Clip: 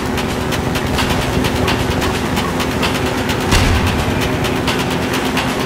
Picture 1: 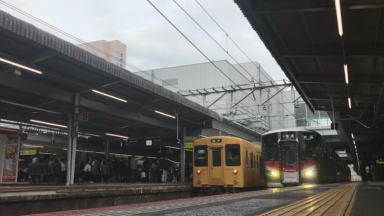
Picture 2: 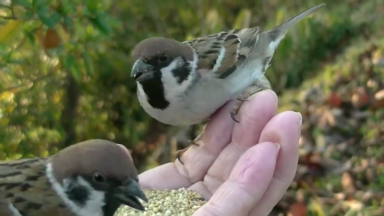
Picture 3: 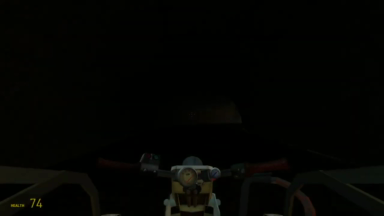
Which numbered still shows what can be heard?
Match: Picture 3